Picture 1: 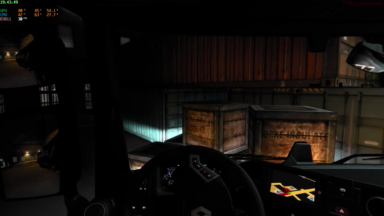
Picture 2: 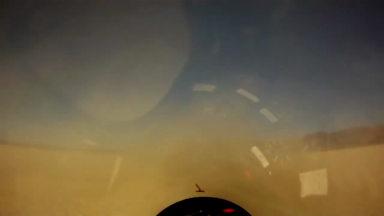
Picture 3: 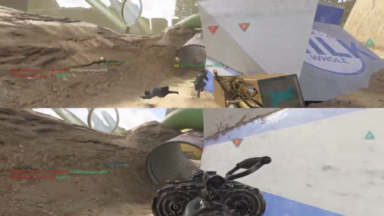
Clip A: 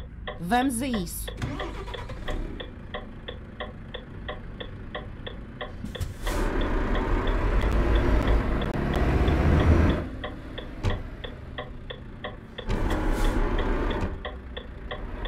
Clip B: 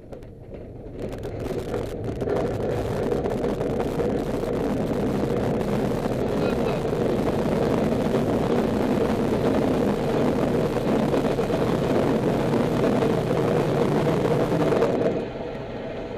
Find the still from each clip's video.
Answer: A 1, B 2